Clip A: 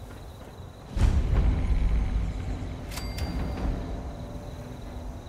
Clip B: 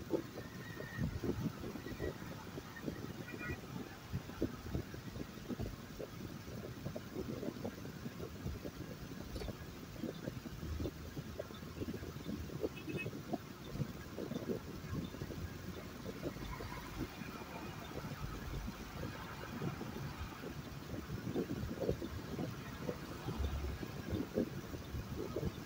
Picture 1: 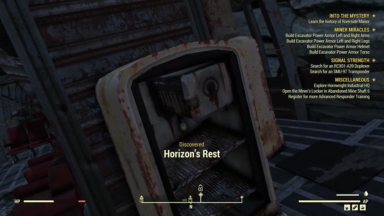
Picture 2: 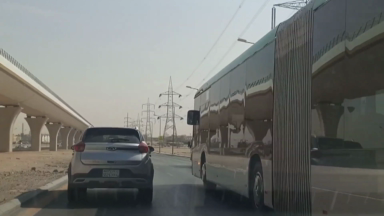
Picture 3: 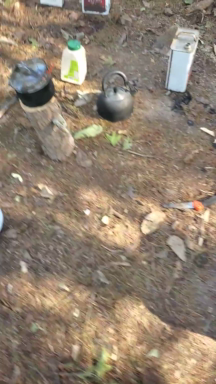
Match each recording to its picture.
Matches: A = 1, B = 2